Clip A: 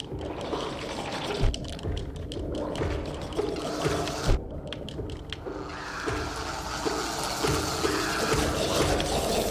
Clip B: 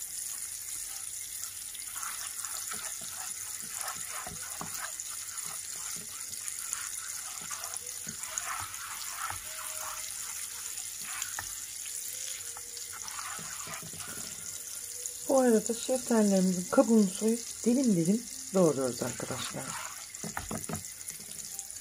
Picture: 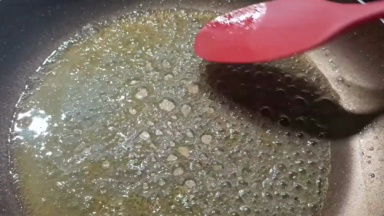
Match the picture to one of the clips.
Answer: B